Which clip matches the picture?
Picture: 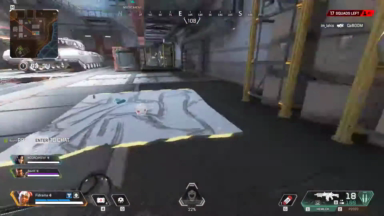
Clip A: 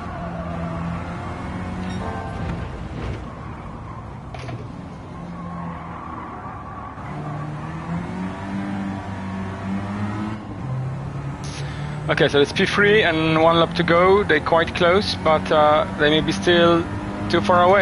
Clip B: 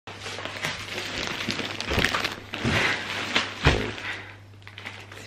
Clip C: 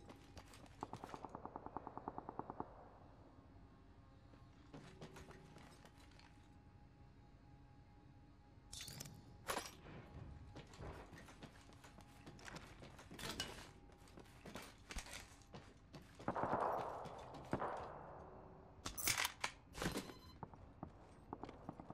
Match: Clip C